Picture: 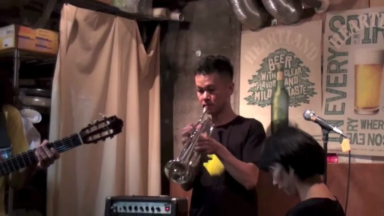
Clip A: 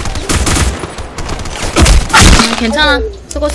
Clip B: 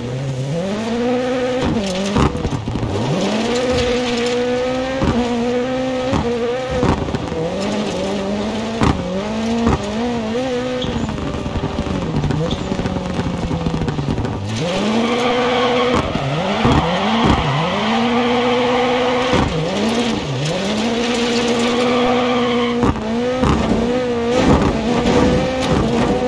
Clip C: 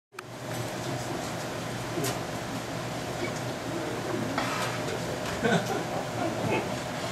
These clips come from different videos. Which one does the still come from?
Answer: C